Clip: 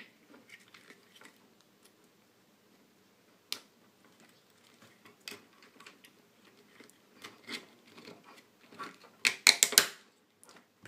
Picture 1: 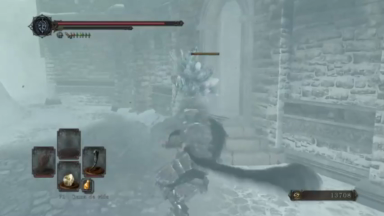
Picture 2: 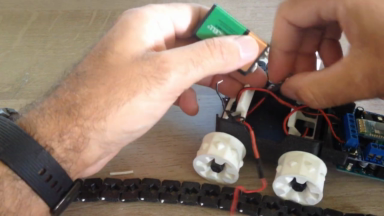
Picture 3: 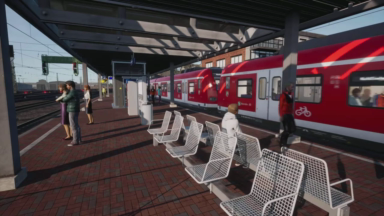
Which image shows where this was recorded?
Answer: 2